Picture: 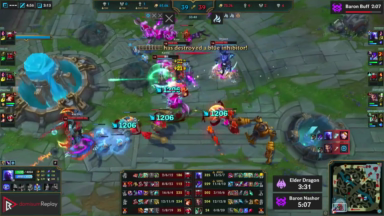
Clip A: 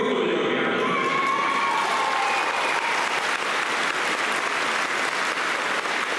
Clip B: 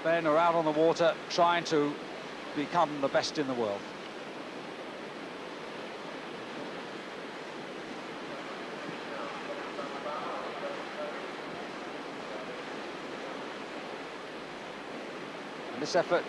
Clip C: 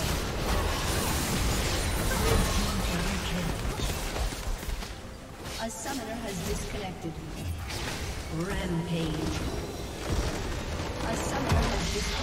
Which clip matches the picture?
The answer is C